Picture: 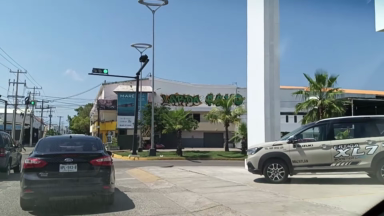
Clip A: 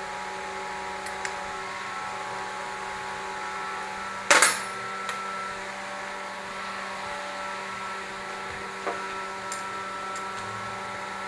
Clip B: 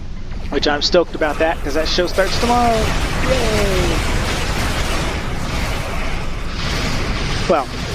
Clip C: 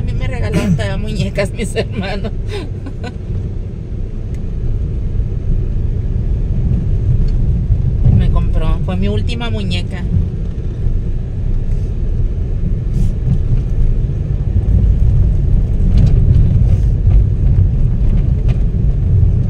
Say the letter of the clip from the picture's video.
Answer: C